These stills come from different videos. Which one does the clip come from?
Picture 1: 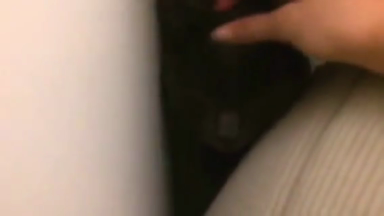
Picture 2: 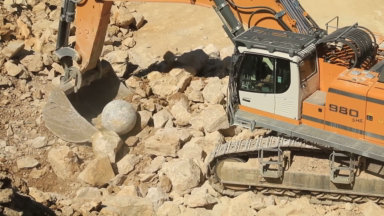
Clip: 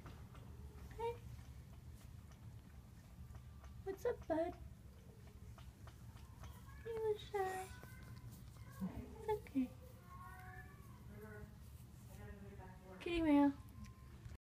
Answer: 1